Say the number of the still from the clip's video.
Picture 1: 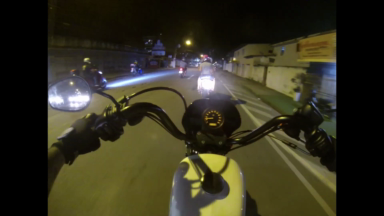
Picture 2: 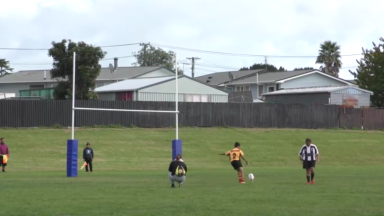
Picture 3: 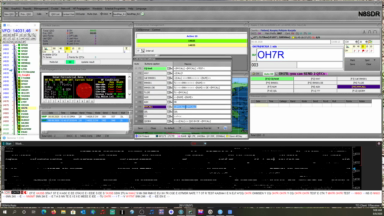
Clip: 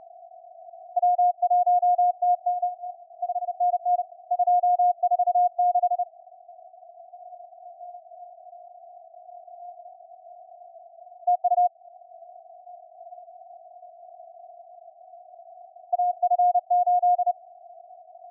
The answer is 3